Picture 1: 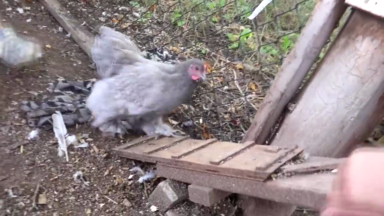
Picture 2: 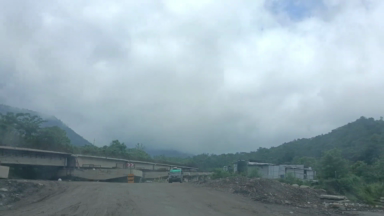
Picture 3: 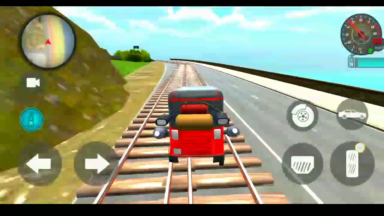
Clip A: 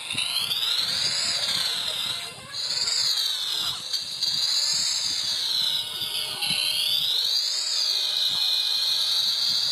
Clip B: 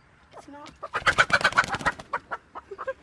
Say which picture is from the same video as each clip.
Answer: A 3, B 1